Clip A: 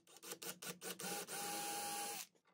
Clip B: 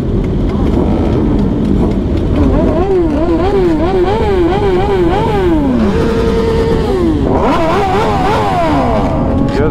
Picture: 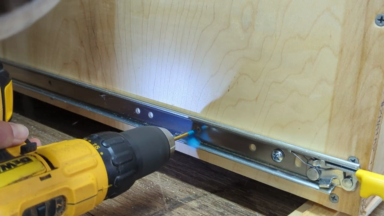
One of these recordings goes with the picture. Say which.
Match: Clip A